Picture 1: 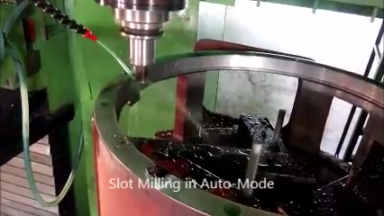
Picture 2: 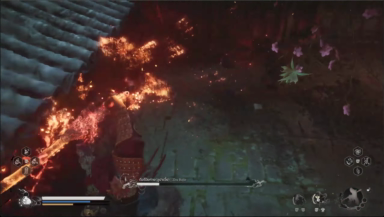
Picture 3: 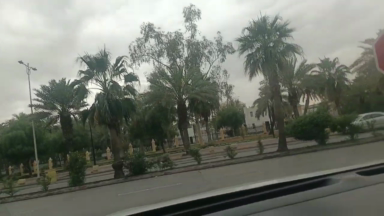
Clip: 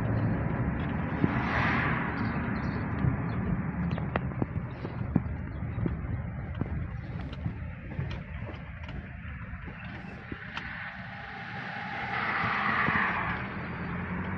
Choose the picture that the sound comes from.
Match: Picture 3